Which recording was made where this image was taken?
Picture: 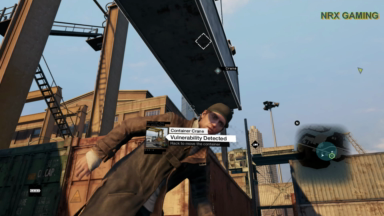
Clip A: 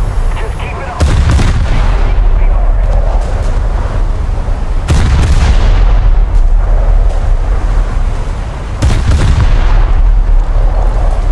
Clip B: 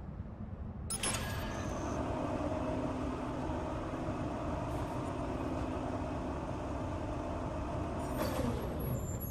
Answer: B